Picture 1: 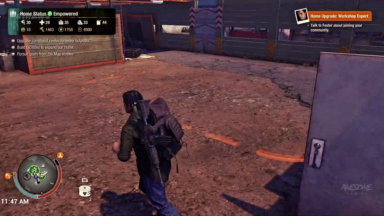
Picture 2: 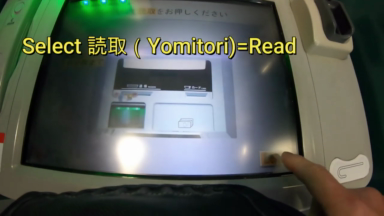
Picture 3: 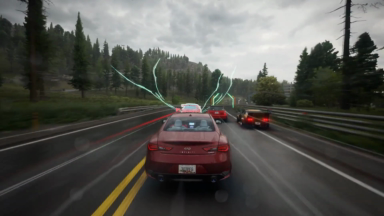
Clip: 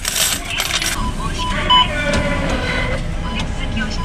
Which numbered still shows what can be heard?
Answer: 2